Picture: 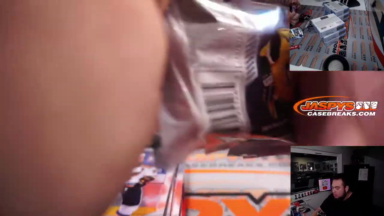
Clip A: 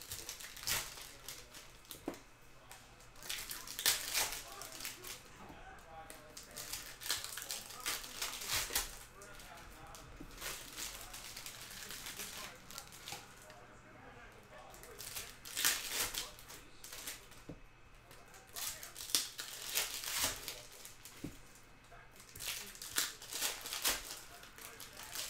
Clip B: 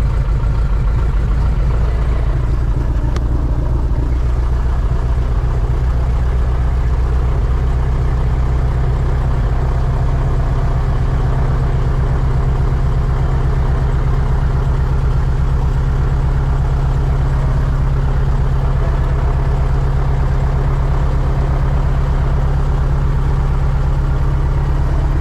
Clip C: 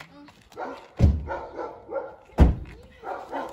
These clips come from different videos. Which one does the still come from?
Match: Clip A